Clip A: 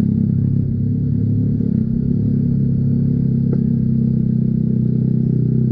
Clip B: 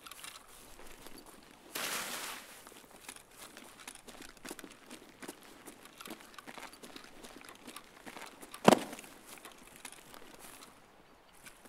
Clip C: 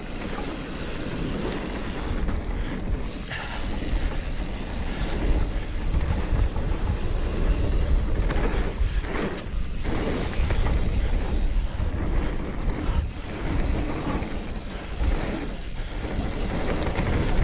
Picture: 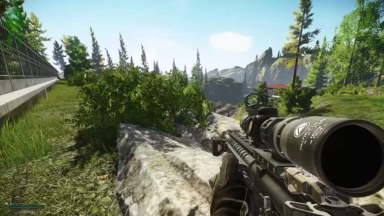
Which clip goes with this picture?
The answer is B